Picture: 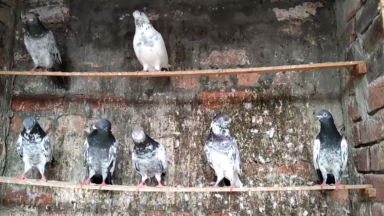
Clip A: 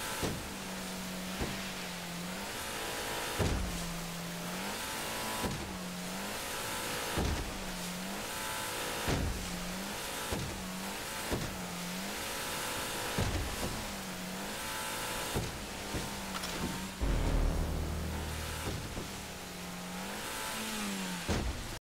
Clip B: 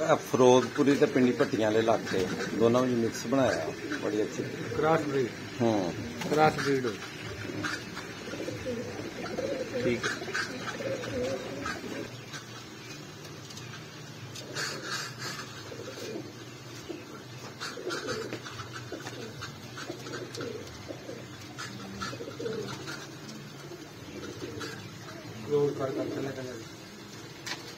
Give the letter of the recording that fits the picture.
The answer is B